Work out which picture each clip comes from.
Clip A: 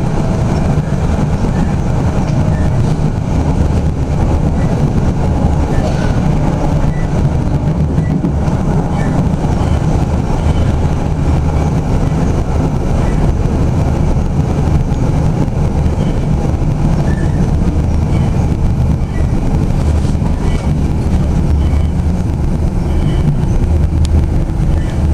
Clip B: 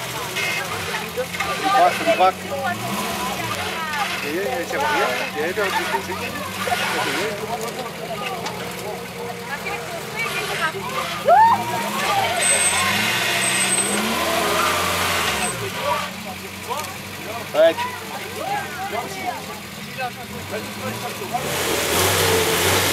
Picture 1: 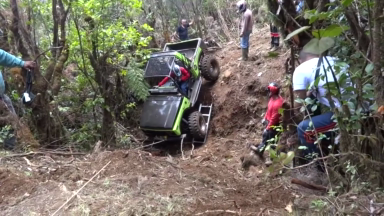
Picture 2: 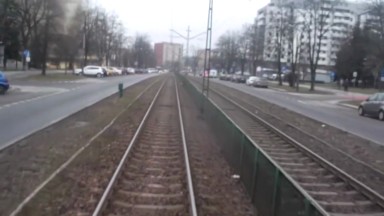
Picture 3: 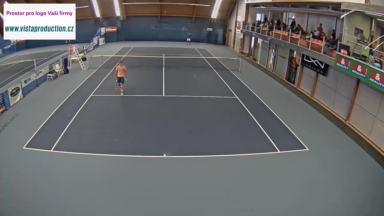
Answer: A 2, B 1